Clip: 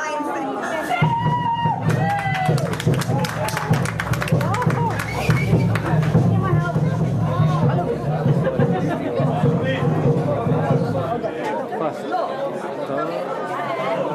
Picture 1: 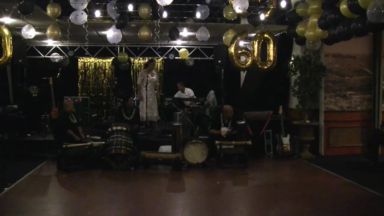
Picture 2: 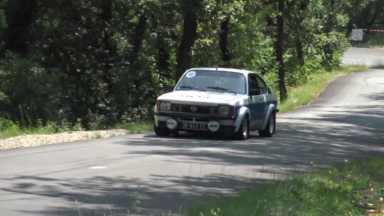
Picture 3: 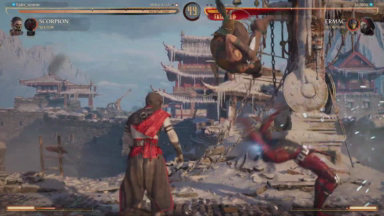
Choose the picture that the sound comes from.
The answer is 1